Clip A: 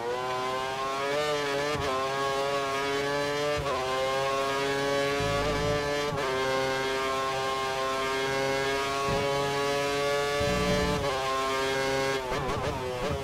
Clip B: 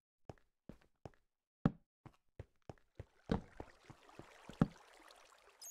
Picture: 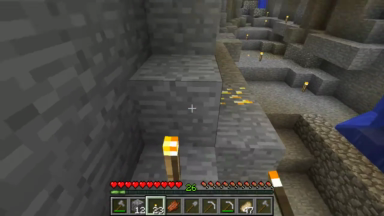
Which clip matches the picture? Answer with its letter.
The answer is B